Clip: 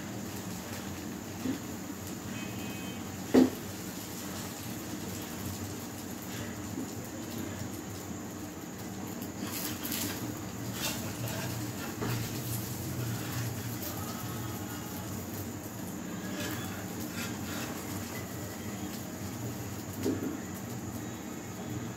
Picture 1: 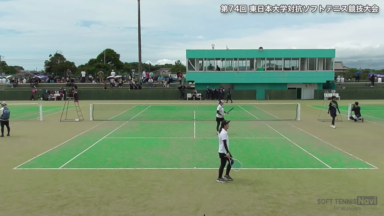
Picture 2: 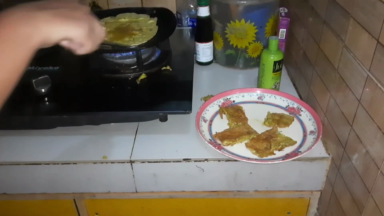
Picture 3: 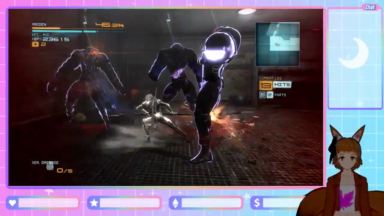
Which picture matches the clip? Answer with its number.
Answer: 2